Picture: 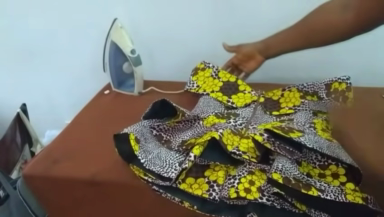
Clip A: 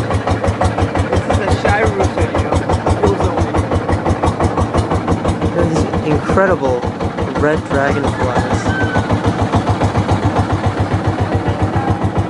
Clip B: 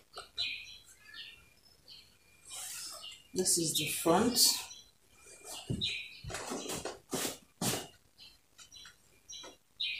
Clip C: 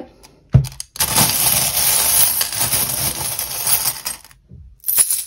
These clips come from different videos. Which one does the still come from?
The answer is B